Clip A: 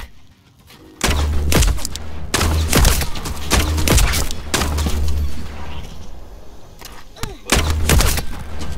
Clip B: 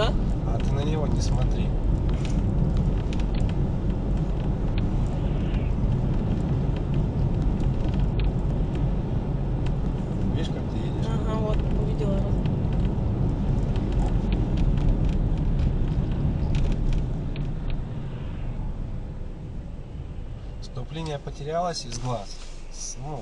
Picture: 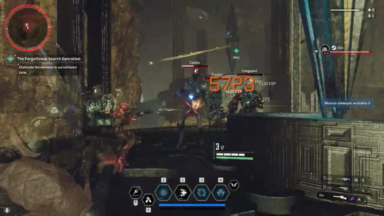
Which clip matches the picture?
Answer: A